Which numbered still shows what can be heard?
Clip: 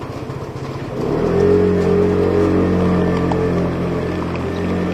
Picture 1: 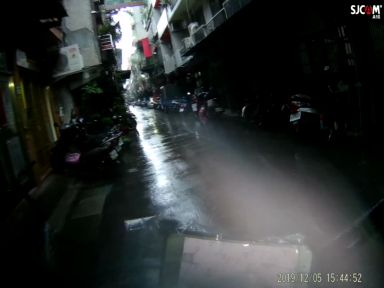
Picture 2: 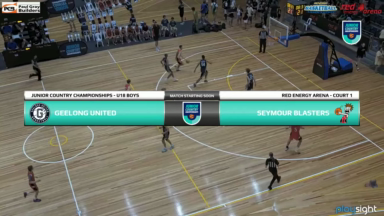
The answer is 1